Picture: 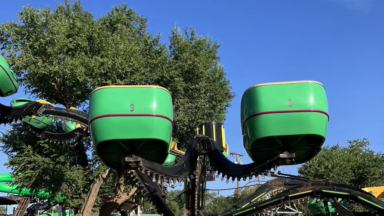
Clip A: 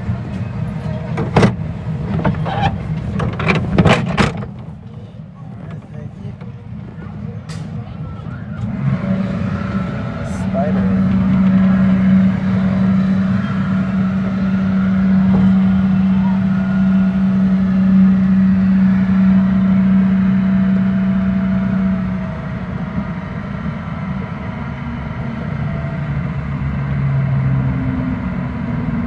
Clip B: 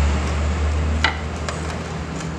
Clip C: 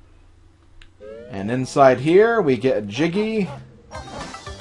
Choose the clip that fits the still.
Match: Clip A